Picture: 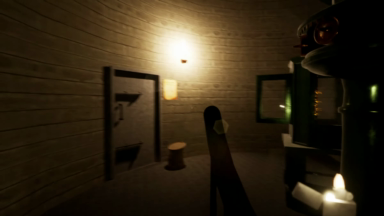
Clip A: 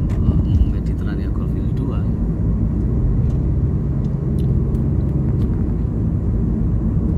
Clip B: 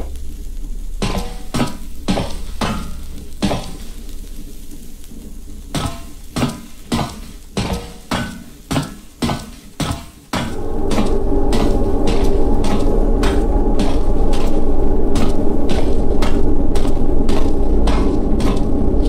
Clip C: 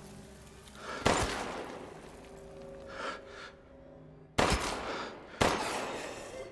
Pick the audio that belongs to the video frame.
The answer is B